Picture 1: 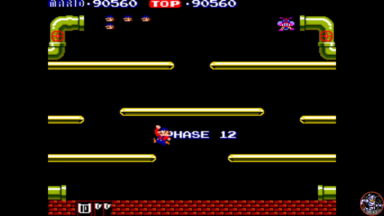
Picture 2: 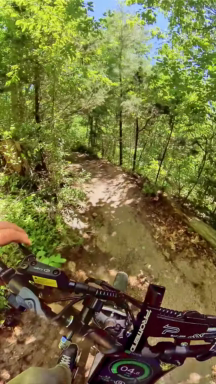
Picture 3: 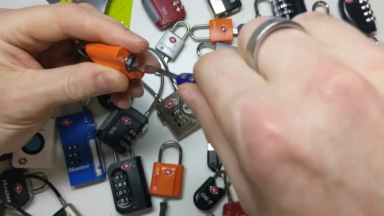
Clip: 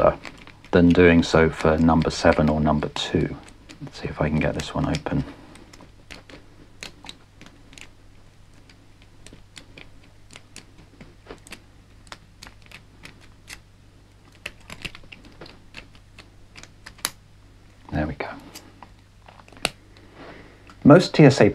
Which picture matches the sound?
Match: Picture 3